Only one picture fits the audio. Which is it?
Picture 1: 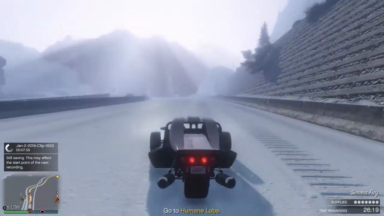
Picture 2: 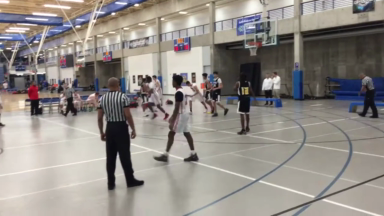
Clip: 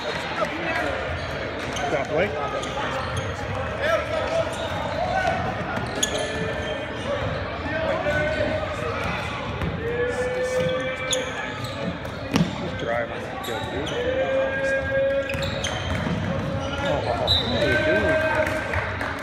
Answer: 2